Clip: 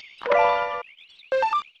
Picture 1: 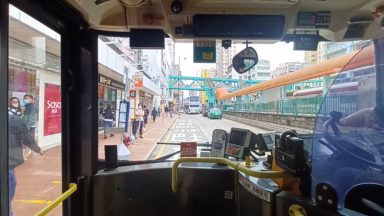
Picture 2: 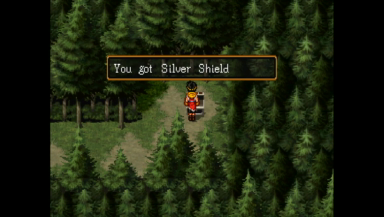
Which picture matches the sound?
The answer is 2